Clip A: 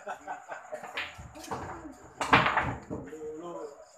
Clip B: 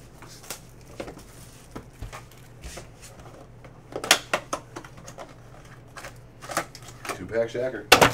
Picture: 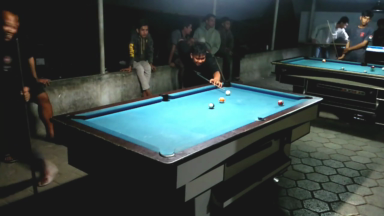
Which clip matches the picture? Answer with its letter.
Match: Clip A